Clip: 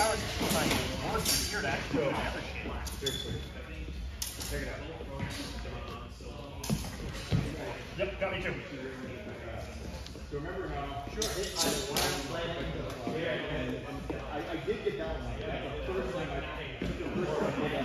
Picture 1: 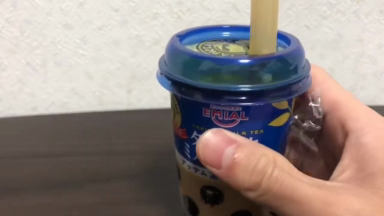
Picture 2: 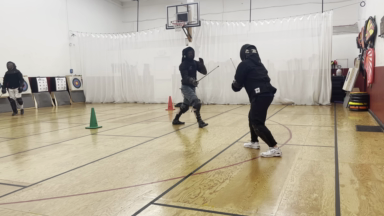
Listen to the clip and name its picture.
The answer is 2